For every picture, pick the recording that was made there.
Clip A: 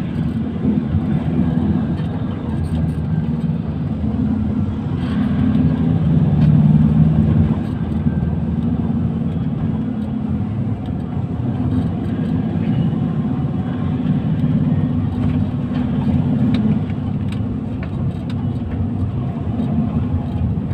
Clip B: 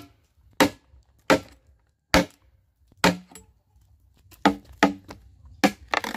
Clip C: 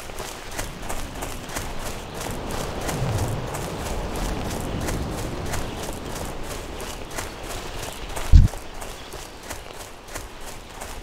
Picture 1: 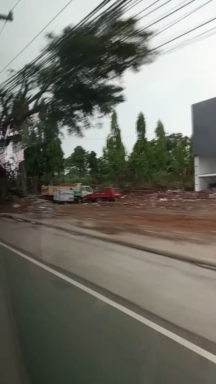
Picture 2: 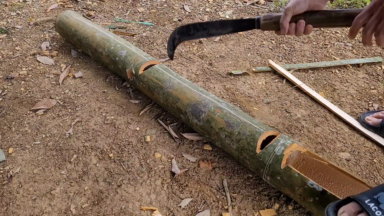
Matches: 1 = A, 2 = B